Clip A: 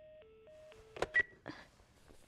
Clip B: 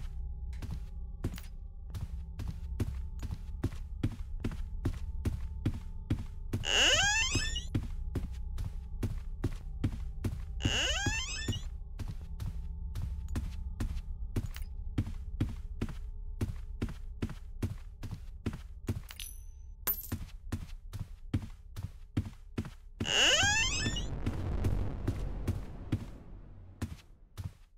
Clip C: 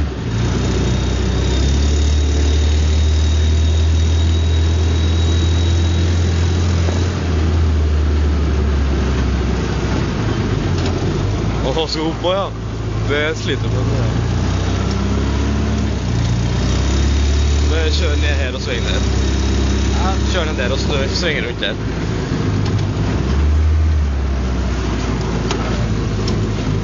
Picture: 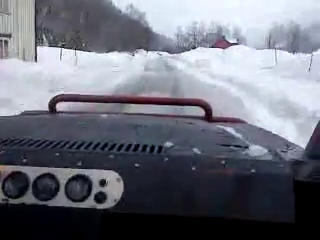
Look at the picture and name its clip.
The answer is C